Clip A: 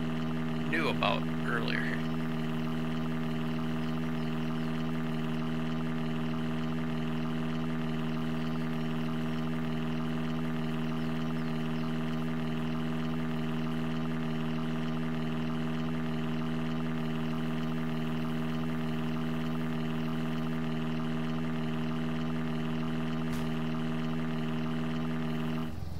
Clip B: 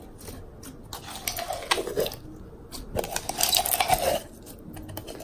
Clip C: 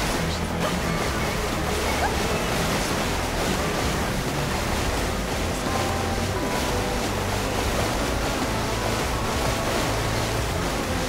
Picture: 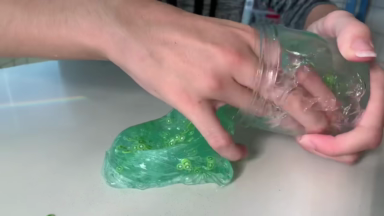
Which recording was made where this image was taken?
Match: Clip B